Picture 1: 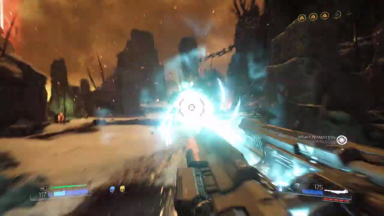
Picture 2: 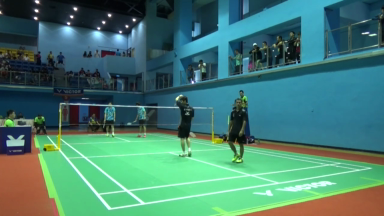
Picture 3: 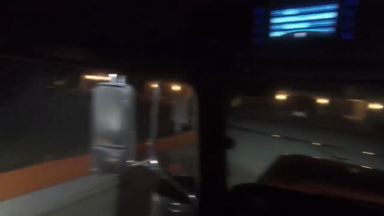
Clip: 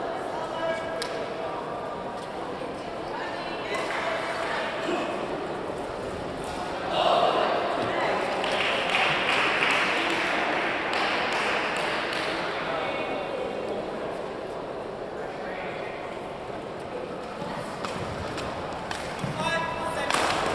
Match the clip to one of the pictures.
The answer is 2